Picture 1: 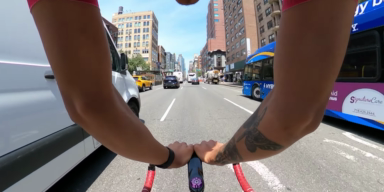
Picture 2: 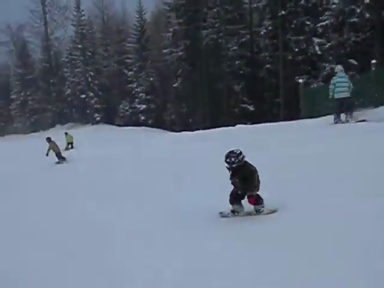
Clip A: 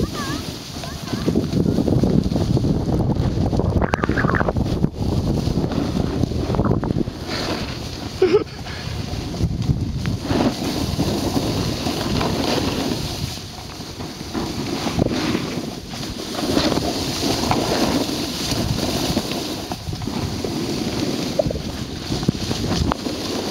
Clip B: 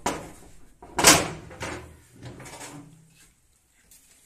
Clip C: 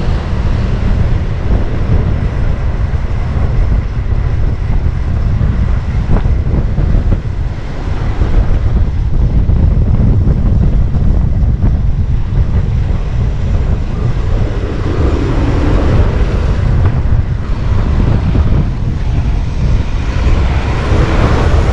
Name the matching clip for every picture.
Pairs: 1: C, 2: A